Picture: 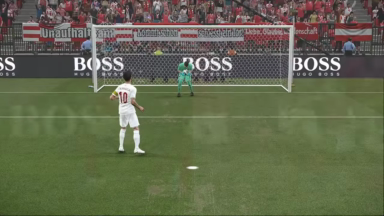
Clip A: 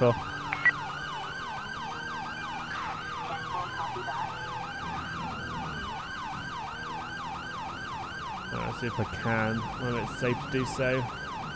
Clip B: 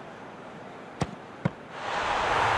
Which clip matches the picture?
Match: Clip B